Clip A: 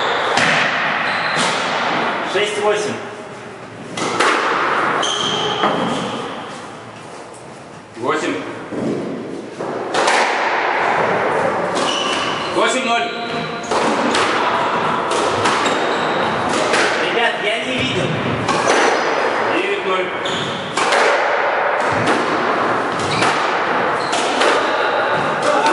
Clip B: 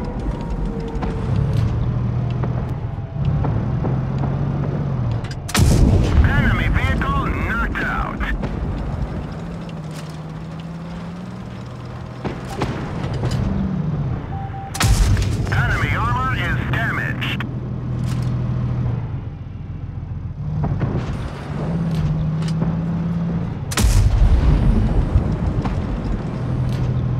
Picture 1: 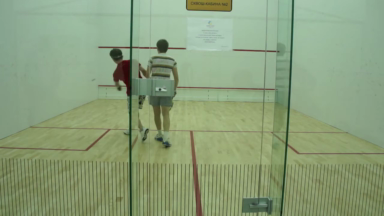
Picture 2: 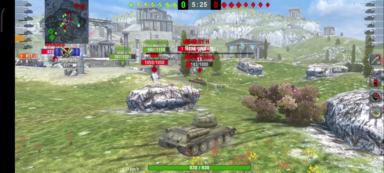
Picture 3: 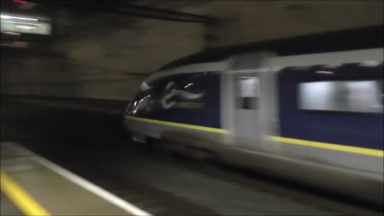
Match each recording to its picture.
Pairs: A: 1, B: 2